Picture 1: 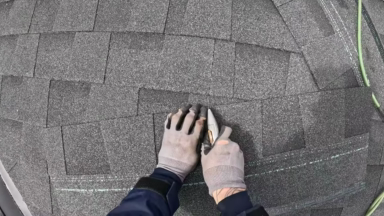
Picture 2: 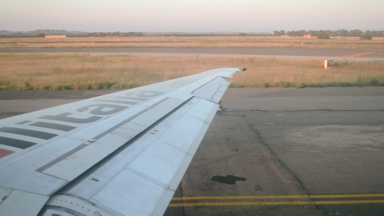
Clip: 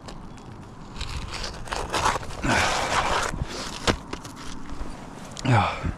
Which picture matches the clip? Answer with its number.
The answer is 1